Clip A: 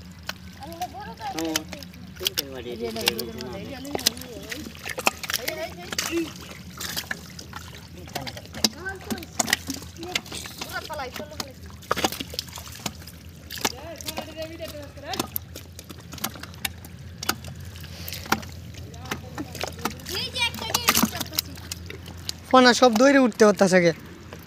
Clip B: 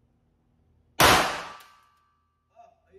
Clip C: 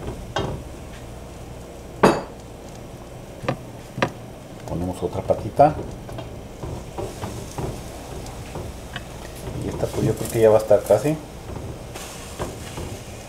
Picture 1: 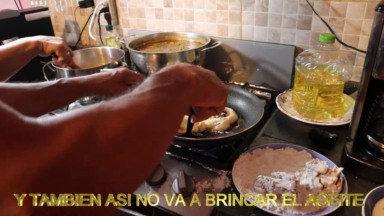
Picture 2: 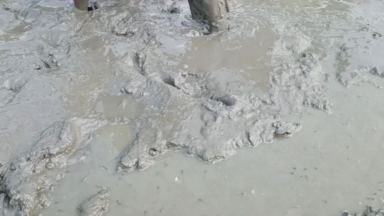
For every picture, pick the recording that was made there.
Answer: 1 C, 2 A